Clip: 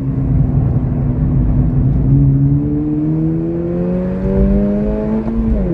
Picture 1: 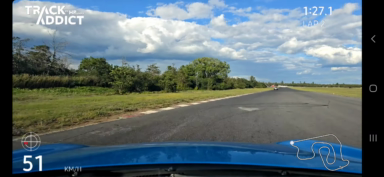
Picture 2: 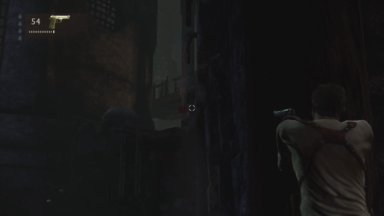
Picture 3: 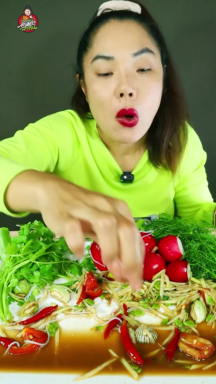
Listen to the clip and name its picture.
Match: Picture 1